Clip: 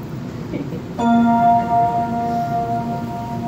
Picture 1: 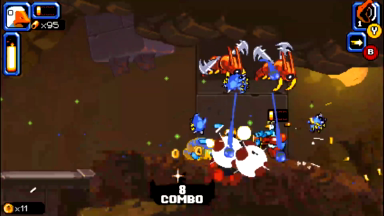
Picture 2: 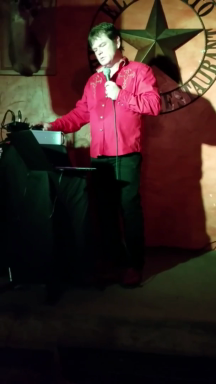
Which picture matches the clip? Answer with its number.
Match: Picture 2